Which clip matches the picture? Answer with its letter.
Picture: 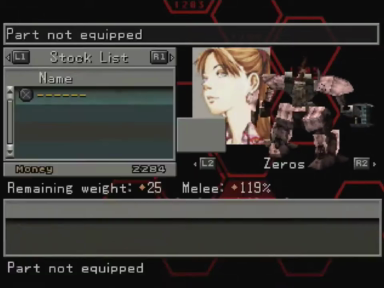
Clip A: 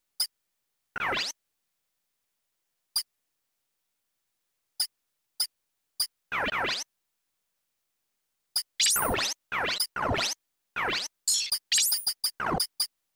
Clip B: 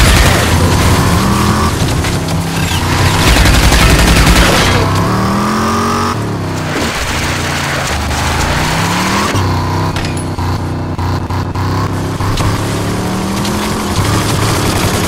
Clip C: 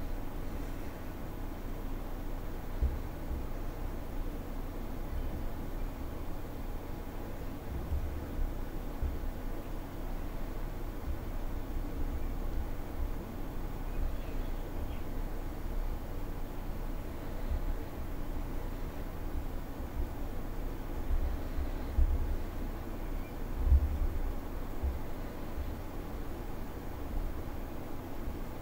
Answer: A